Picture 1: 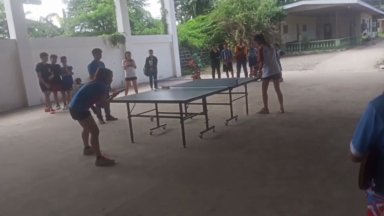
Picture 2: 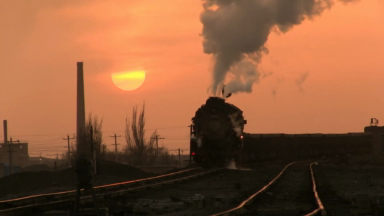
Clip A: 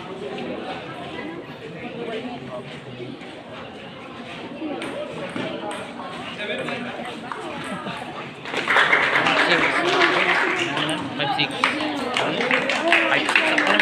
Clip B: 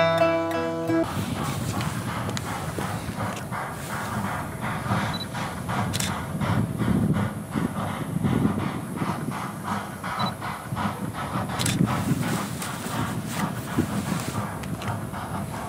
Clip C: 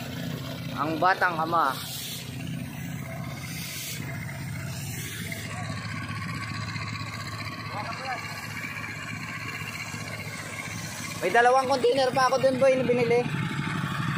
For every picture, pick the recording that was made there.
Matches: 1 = A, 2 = B